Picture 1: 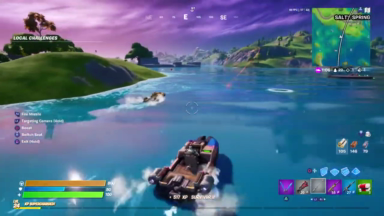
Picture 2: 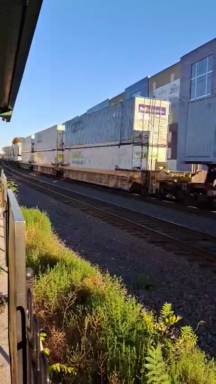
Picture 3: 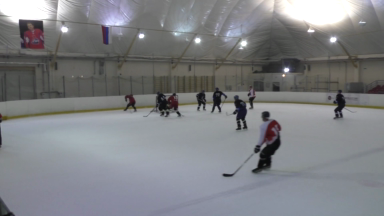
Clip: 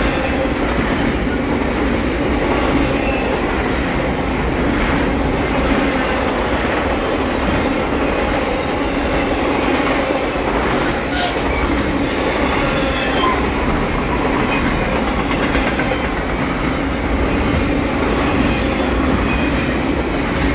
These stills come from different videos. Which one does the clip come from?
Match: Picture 2